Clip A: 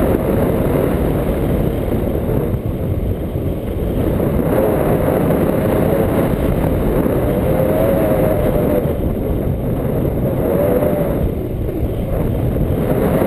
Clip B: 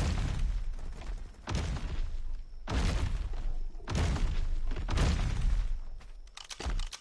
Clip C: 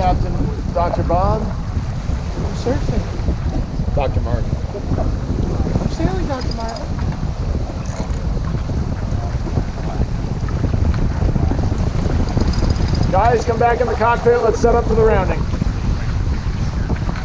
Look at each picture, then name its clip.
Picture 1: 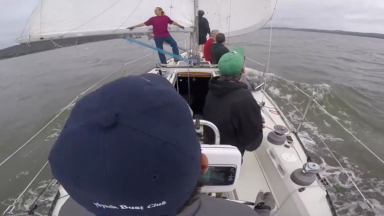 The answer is C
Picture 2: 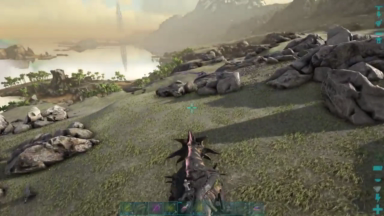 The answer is B